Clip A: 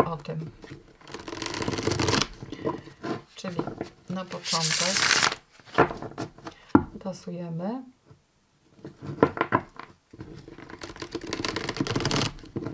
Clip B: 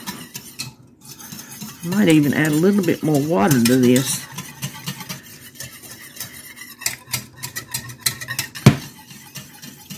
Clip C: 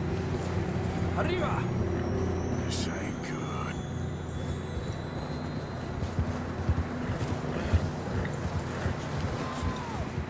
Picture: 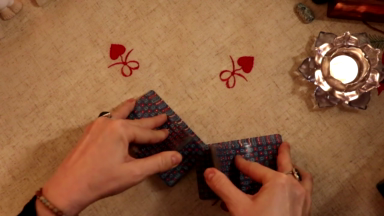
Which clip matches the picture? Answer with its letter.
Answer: A